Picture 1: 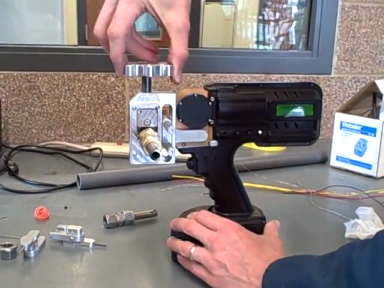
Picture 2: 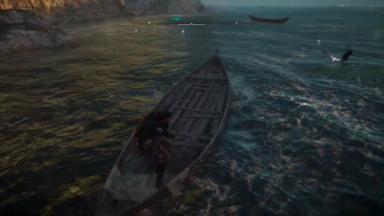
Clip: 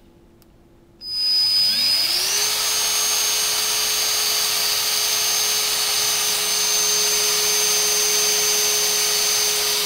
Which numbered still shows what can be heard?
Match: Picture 1